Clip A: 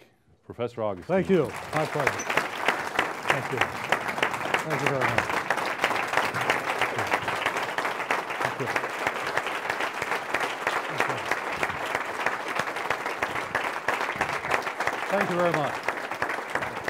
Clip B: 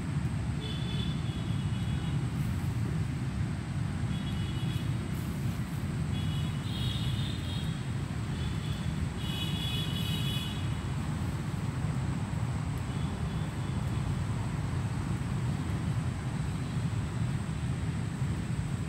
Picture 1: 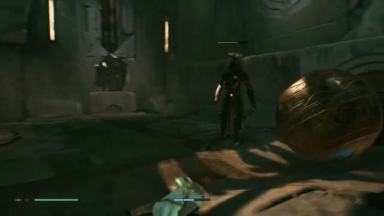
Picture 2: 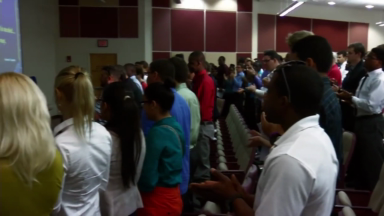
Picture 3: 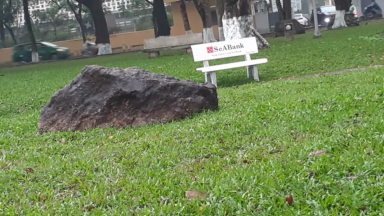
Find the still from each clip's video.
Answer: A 2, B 3